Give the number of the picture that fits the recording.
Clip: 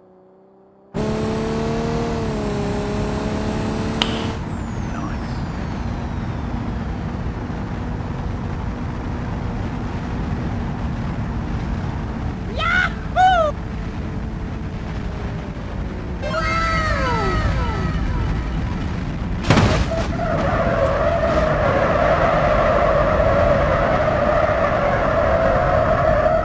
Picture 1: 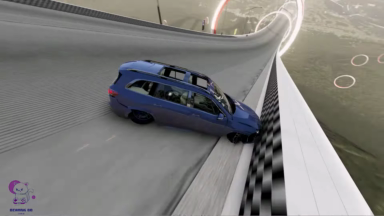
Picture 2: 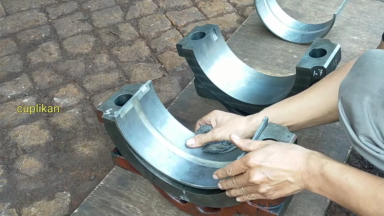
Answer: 1